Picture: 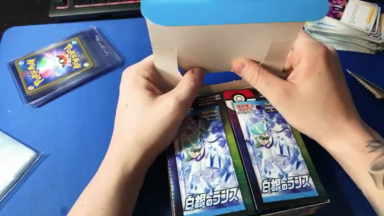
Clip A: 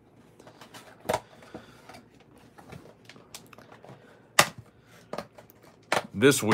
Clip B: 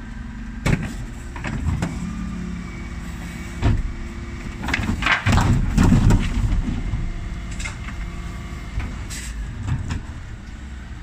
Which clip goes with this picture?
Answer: A